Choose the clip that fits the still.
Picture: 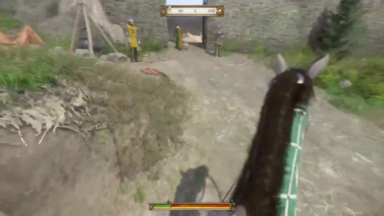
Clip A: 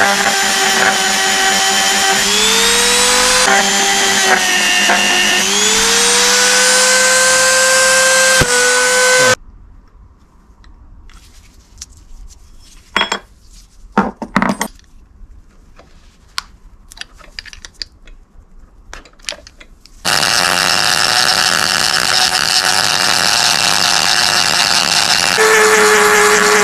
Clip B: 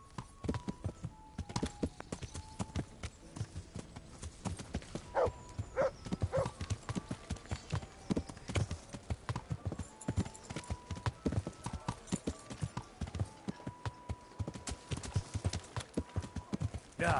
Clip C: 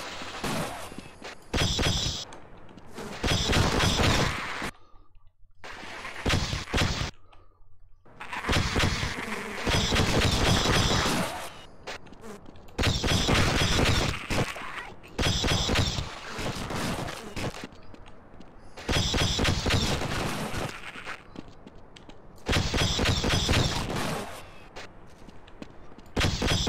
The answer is B